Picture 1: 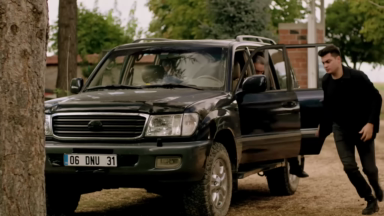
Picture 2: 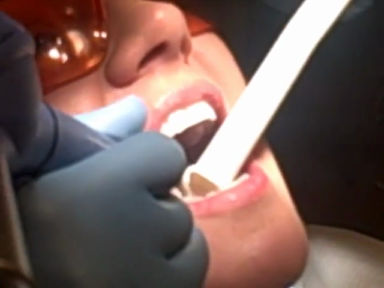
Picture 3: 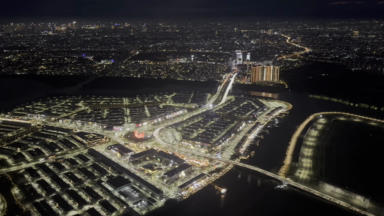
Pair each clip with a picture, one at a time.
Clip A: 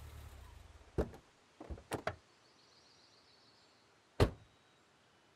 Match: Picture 1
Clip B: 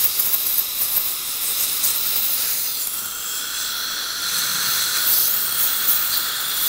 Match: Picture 2